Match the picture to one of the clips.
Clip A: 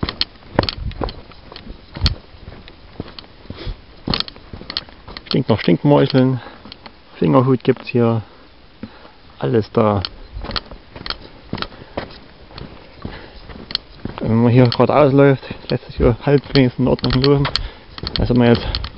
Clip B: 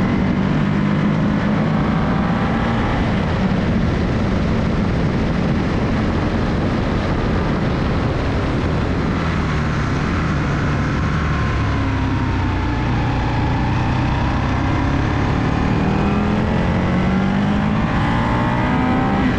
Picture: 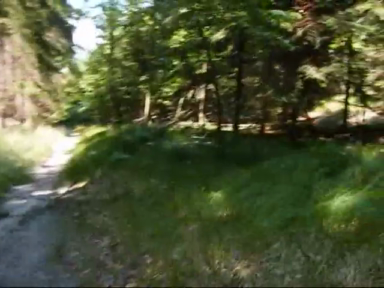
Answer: A